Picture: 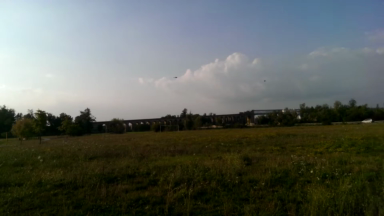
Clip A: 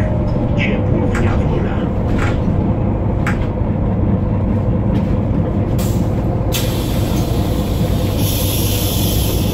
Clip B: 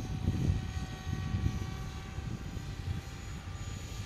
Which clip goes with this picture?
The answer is B